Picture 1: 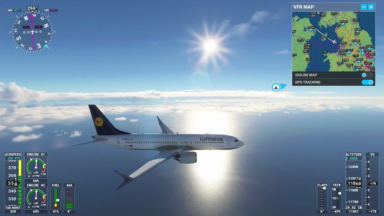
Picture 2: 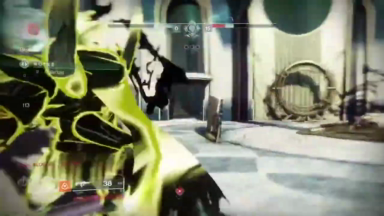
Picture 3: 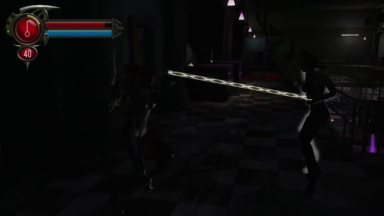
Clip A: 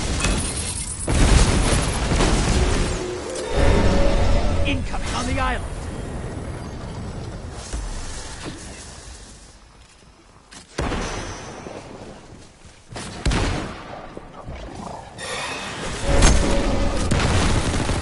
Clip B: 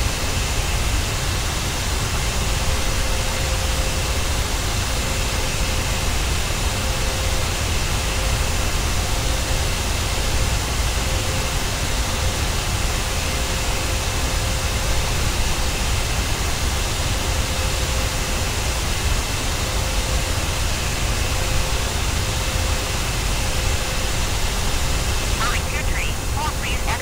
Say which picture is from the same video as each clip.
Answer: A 2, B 1